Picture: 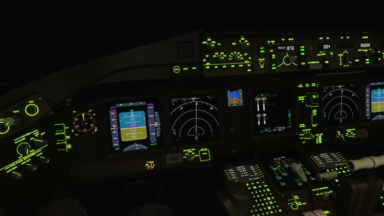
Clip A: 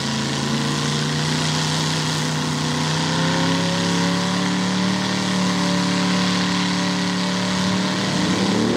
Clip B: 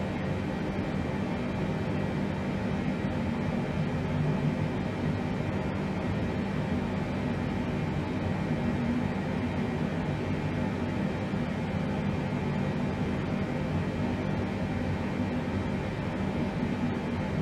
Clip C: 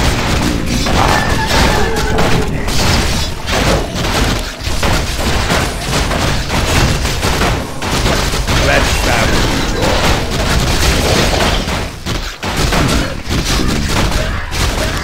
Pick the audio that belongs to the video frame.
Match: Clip B